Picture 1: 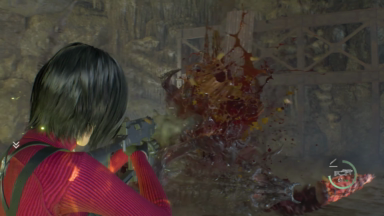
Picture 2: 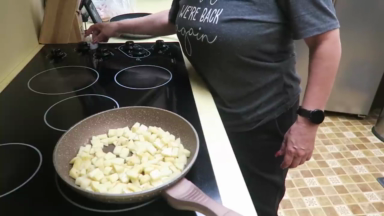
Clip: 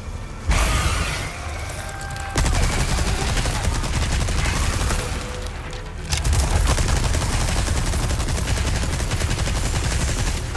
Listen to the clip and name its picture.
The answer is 1